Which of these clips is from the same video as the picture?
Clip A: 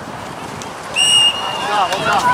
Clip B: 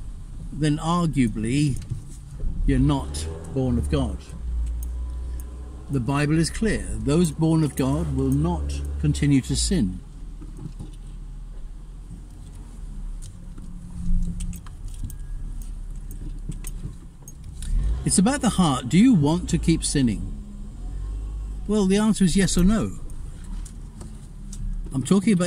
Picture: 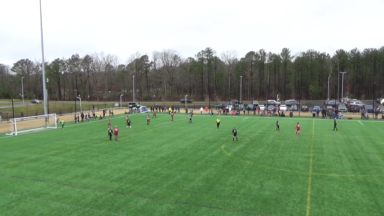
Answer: A